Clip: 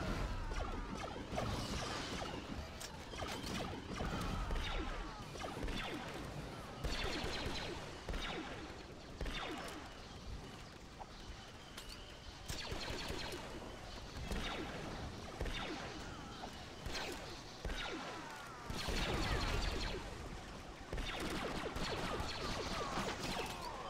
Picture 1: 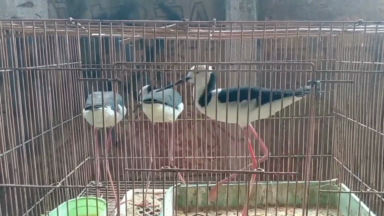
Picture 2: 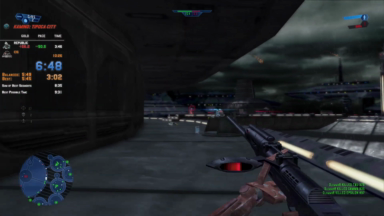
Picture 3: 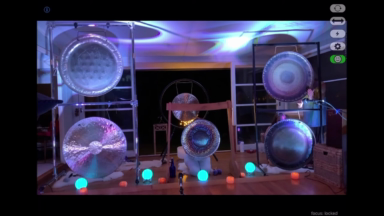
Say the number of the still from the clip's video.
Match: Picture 2